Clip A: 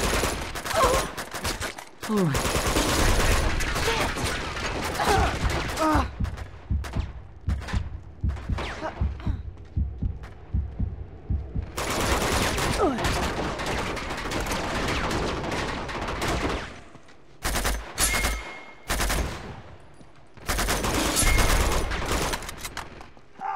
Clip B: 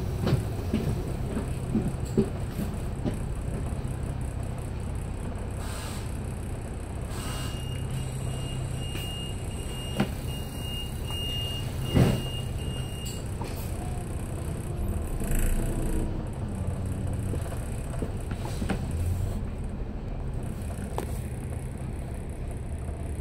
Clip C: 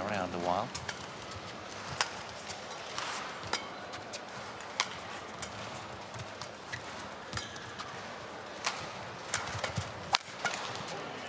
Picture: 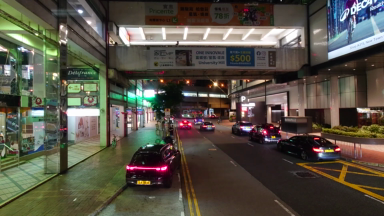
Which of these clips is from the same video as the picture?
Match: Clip B